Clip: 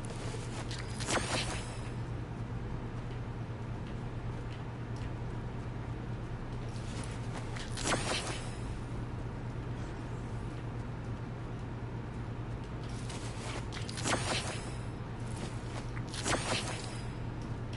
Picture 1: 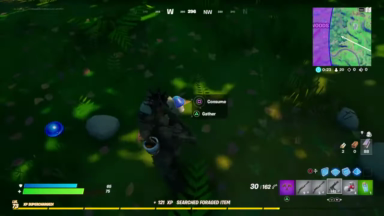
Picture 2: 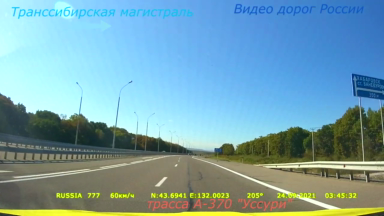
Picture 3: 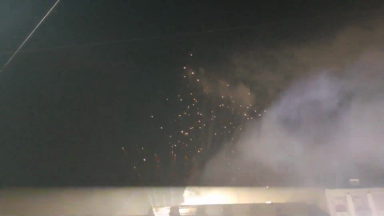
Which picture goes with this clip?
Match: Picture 1